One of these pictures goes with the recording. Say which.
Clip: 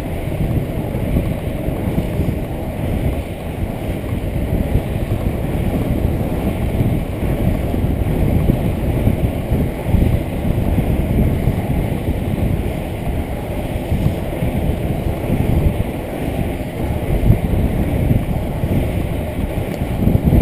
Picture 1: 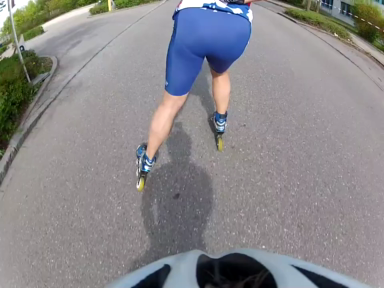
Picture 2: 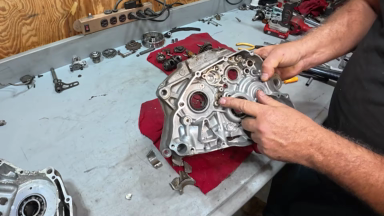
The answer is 1